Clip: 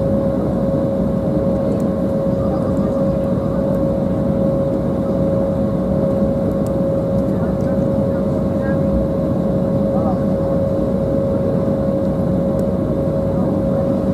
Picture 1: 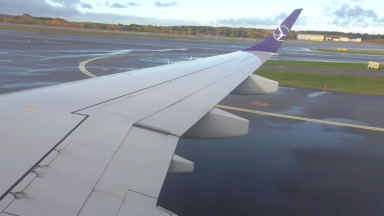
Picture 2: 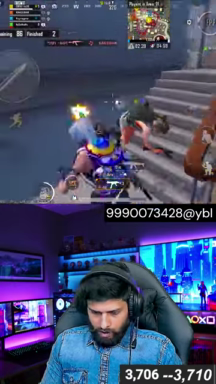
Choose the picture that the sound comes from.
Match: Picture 1